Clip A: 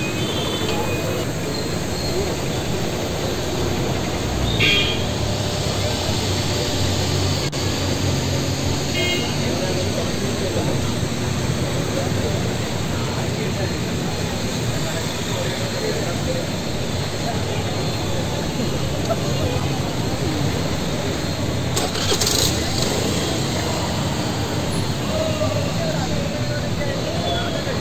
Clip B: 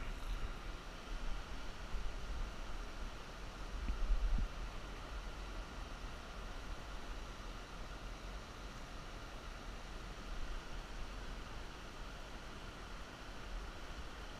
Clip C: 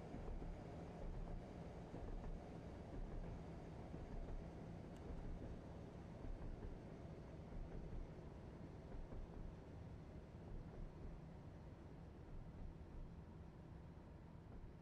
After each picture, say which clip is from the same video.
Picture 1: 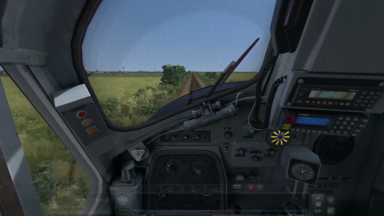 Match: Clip C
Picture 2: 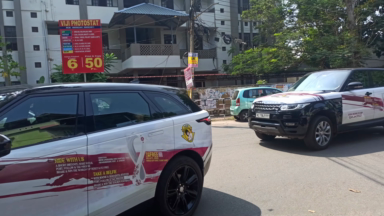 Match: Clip A